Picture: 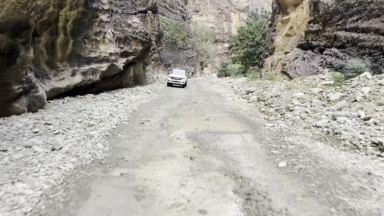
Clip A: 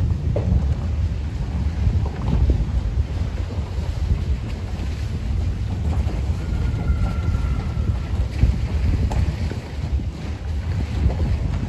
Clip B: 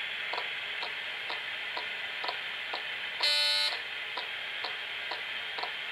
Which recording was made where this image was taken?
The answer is A